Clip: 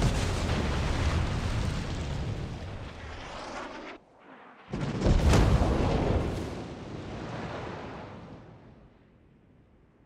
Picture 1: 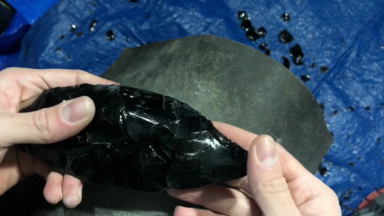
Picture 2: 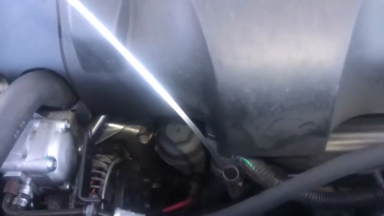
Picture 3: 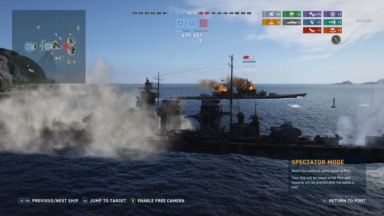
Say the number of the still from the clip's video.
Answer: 3